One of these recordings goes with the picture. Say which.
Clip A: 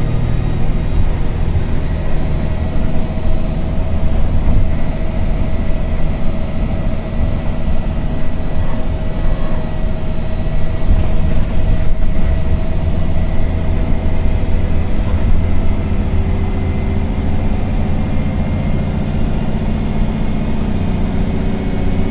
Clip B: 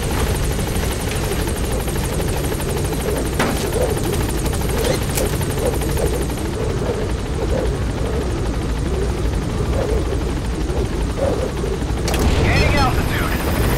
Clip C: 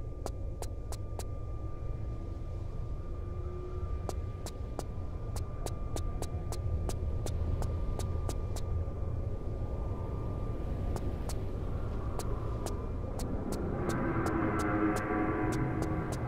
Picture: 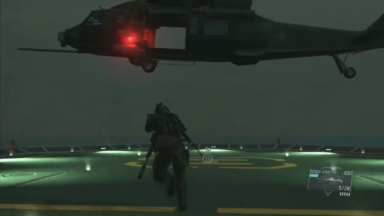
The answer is B